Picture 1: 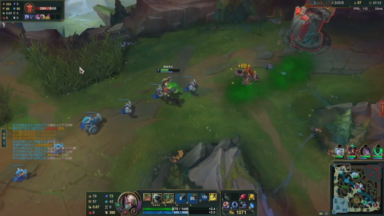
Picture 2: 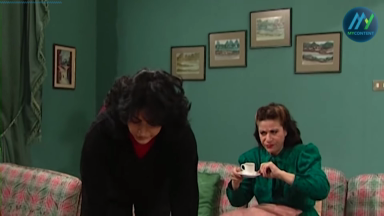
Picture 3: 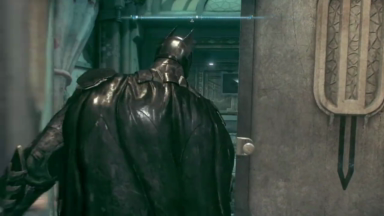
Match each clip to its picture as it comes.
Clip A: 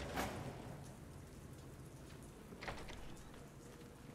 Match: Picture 3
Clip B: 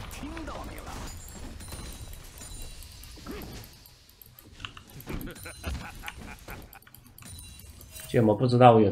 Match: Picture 1